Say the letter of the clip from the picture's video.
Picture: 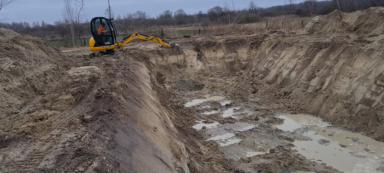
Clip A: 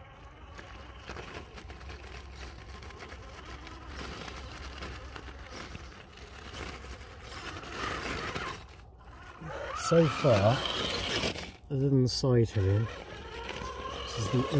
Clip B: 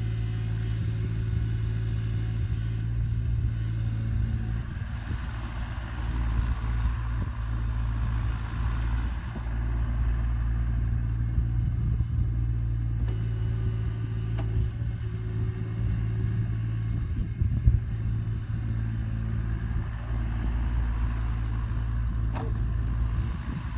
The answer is B